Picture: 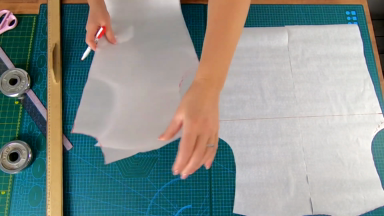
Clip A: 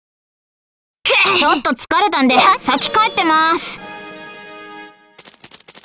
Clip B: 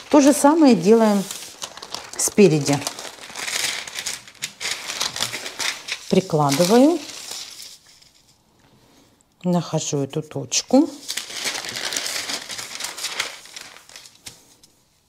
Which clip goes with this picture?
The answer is B